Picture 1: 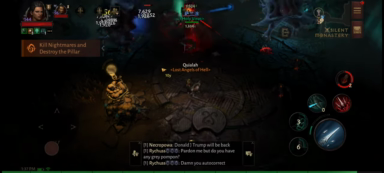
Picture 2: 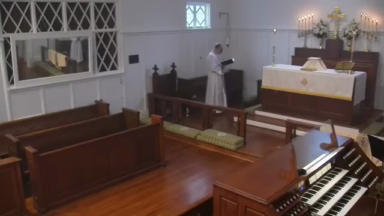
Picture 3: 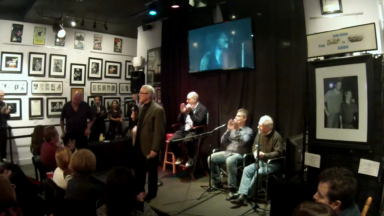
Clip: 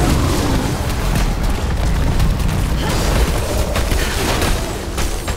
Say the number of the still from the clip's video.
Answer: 1